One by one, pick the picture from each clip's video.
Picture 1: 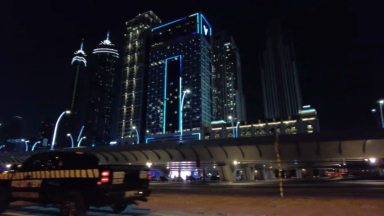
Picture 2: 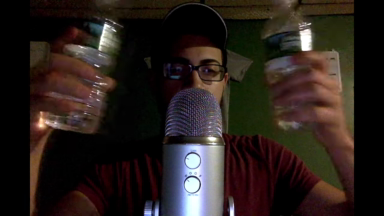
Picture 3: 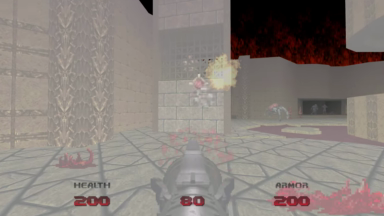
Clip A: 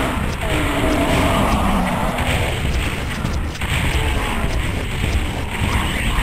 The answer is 3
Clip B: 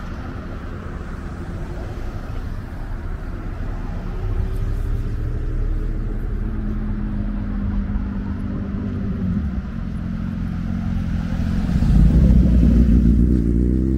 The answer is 1